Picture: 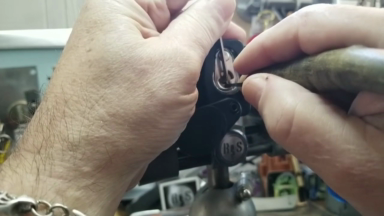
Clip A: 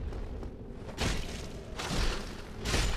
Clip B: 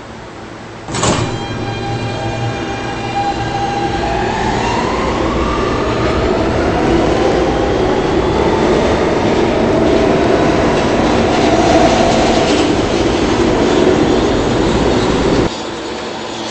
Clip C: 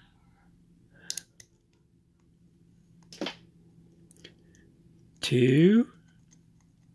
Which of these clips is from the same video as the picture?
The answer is C